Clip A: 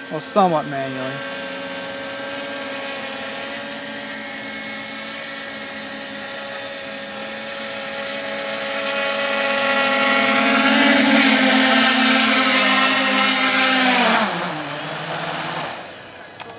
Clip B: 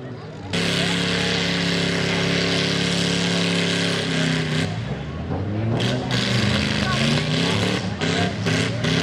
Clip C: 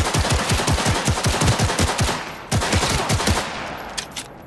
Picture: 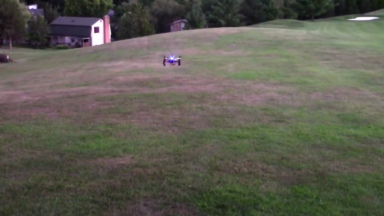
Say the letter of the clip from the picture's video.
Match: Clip A